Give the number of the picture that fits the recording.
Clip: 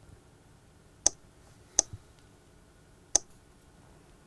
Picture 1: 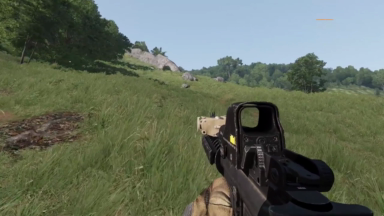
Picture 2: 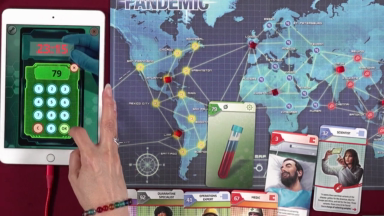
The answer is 2